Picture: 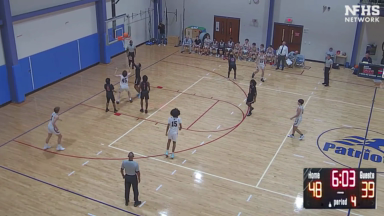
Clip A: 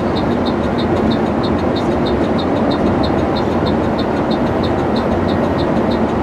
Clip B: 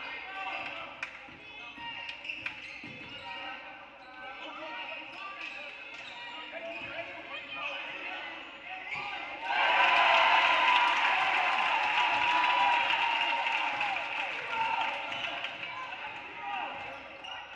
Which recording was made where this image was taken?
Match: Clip B